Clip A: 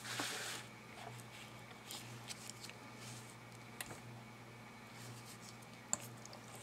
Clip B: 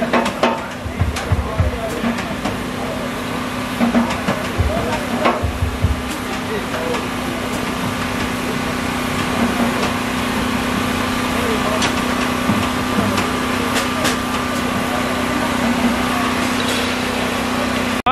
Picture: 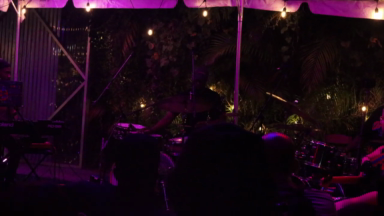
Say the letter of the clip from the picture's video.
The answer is B